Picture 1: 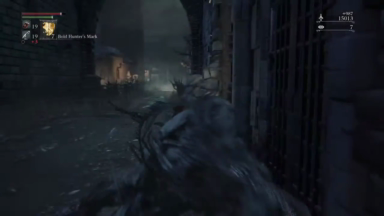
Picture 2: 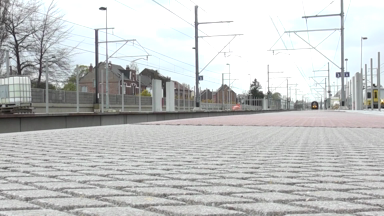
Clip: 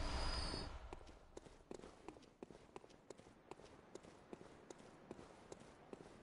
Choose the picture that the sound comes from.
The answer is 1